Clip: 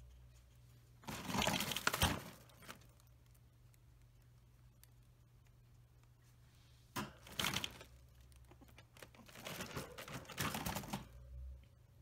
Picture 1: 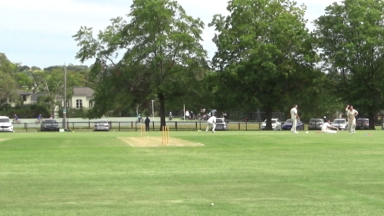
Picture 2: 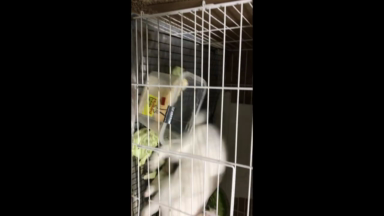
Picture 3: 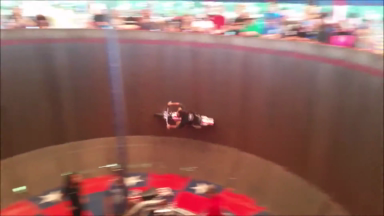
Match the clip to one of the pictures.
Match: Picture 2